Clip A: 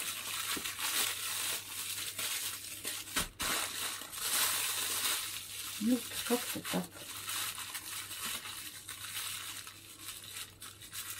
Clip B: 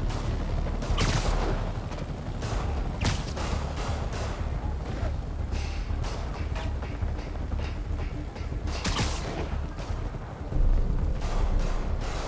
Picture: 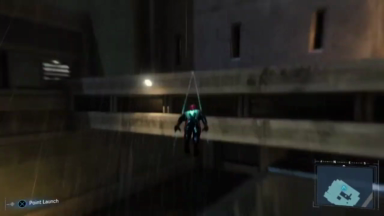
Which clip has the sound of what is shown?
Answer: B